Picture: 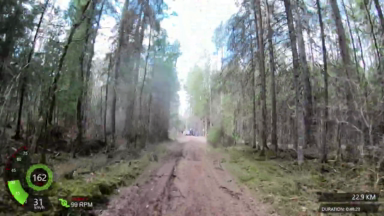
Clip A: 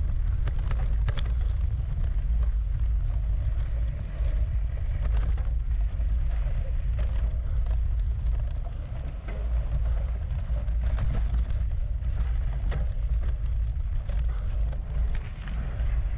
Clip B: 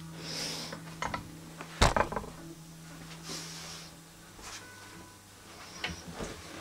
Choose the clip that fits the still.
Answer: A